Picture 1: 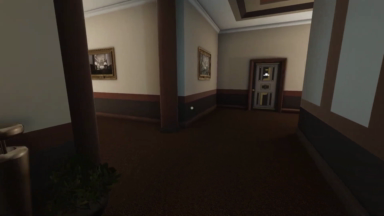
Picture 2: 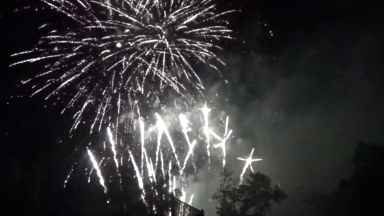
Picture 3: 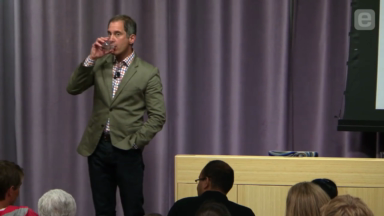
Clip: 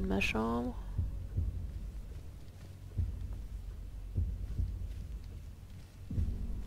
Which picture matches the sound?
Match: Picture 1